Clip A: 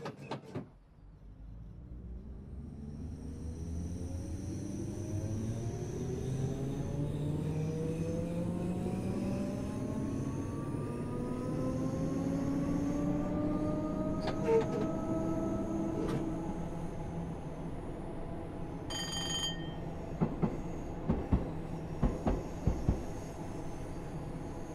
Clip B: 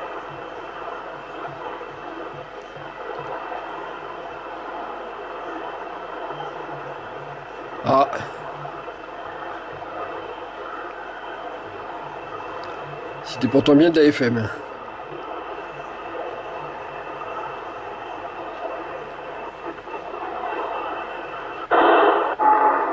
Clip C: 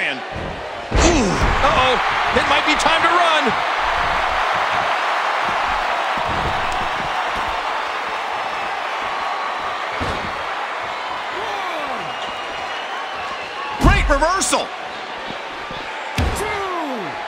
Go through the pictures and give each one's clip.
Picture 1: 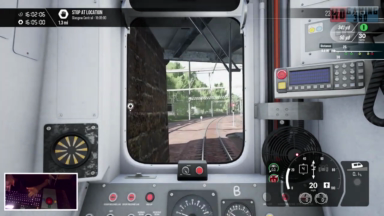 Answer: A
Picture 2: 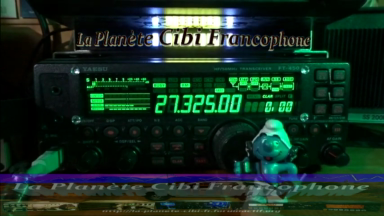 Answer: B